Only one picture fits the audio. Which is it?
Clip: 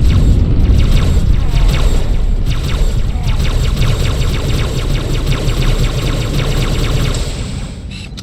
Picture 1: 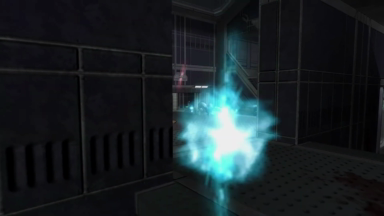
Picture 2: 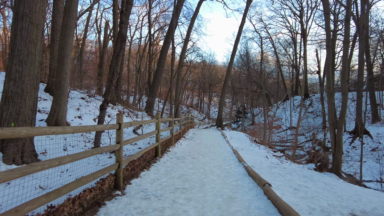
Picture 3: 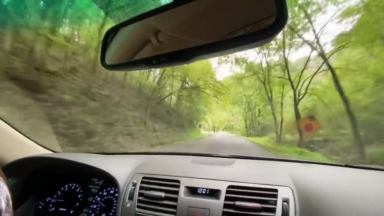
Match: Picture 1